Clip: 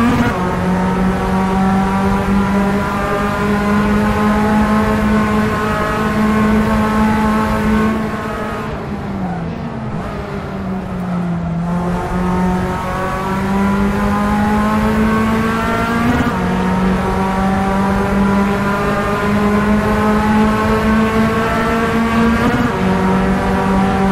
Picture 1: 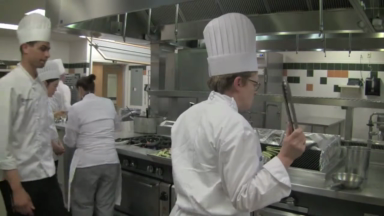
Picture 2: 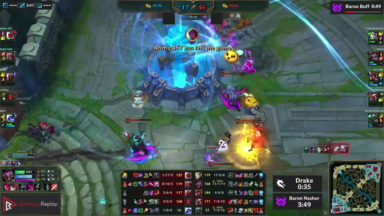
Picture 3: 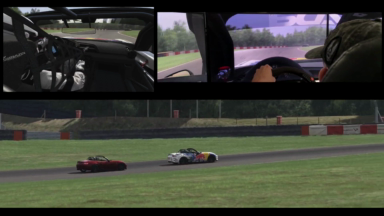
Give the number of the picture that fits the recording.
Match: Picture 3